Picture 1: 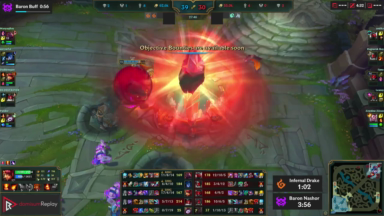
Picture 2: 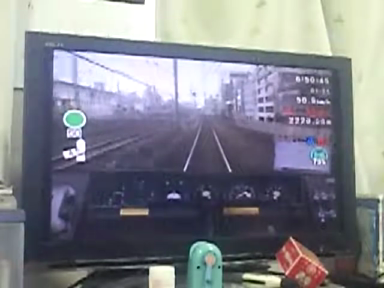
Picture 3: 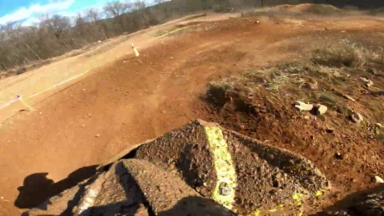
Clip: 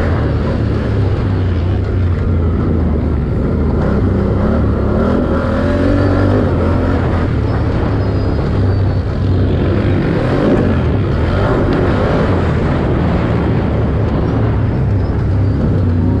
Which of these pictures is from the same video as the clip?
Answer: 3